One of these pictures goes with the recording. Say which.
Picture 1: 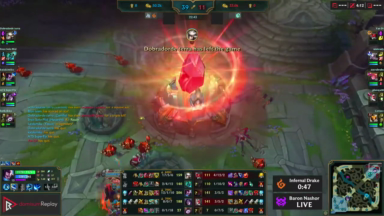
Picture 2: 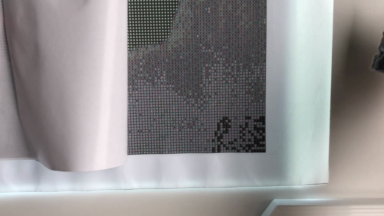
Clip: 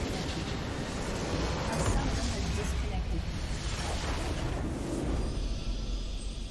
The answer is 1